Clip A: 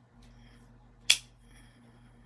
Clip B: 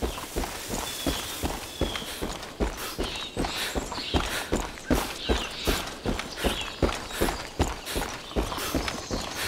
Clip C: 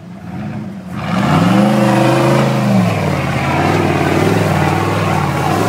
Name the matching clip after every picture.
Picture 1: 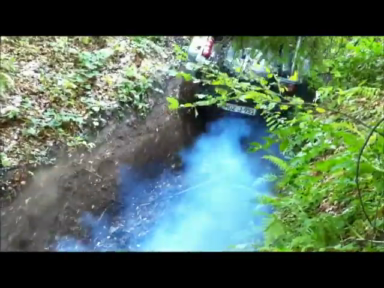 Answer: C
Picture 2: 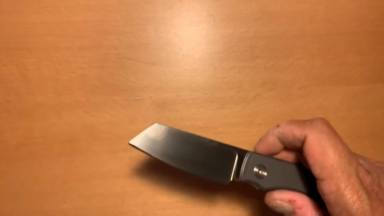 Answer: A